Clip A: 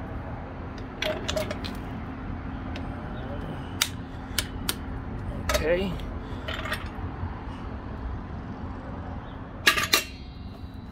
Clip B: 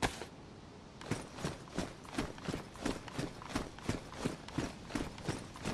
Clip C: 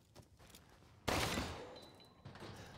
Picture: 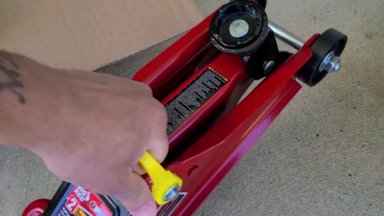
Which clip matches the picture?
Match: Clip A